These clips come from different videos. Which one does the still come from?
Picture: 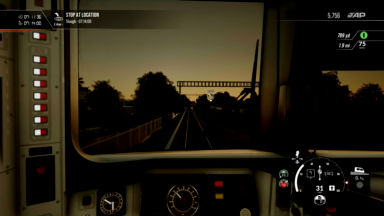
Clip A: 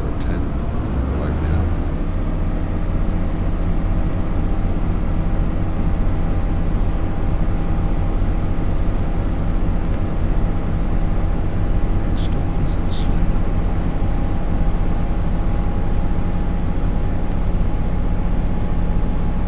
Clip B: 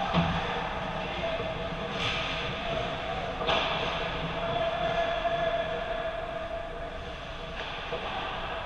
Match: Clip A